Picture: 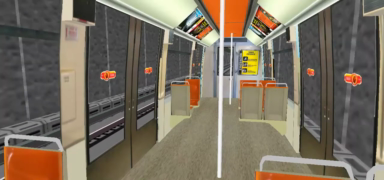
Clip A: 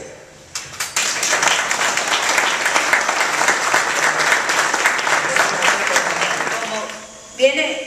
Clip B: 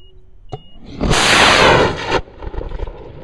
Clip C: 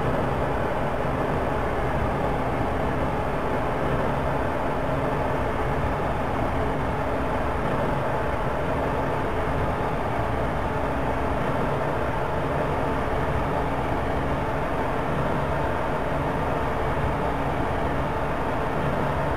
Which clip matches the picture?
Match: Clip C